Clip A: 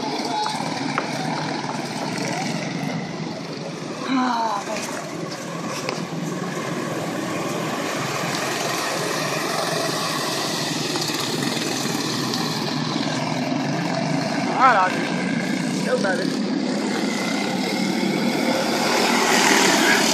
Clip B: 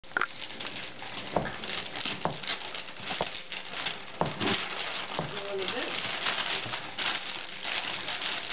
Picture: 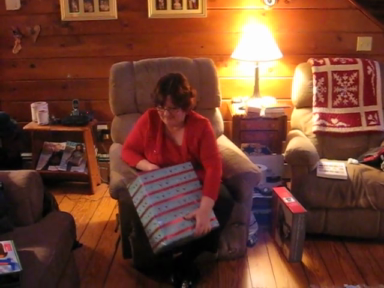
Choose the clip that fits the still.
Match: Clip B